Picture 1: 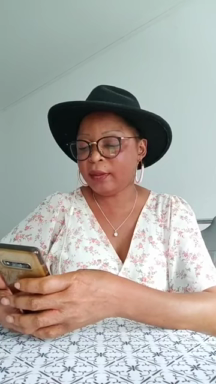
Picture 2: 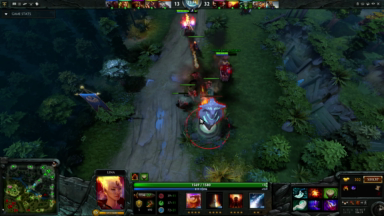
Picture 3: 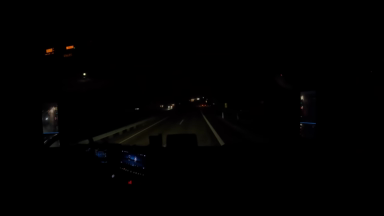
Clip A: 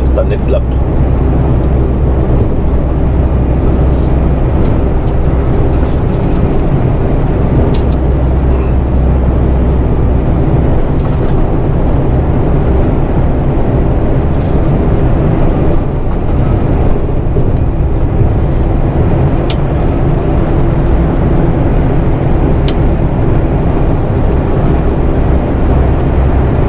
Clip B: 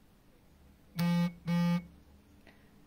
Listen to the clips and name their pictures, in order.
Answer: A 3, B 1